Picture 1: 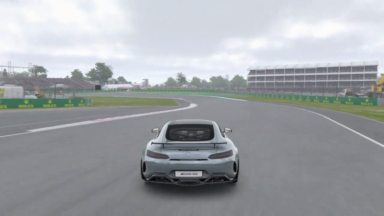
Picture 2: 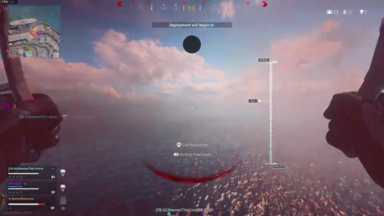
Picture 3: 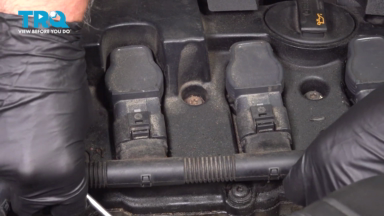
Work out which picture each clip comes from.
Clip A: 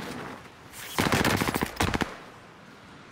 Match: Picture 2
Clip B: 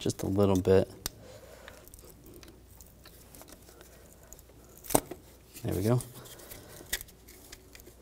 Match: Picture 3